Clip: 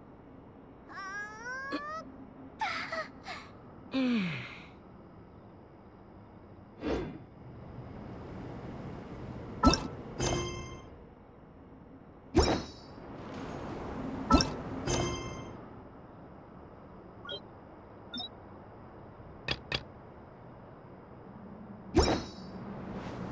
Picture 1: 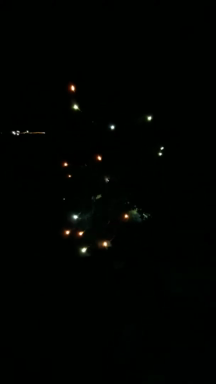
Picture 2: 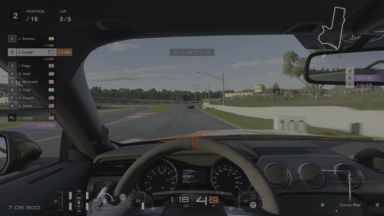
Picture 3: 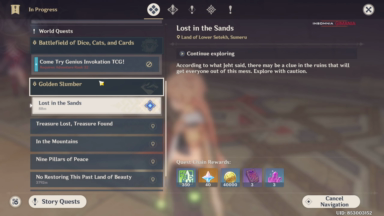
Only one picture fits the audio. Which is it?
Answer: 3